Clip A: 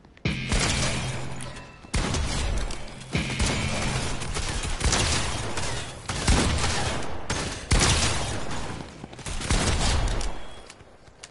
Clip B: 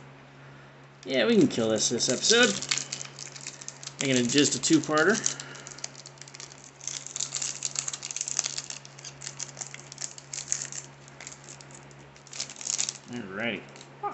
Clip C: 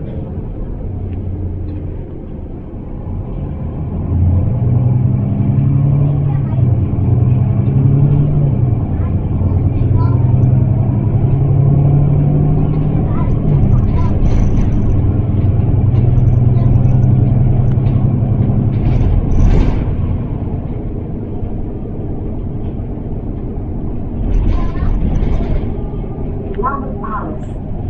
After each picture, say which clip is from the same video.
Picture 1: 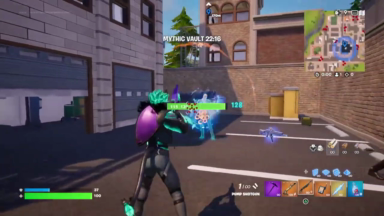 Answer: A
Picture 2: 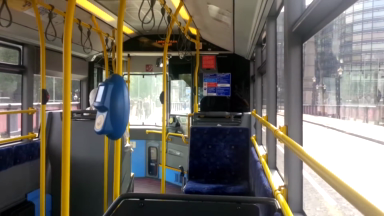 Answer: C